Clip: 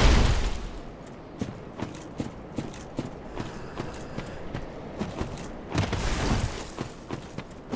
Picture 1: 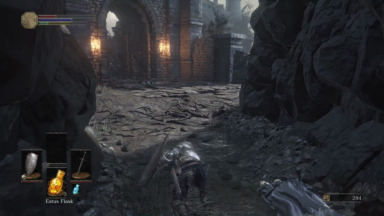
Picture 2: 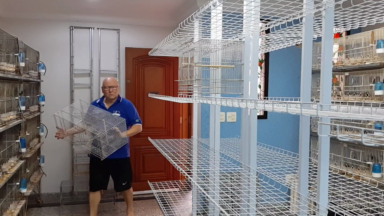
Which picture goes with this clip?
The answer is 1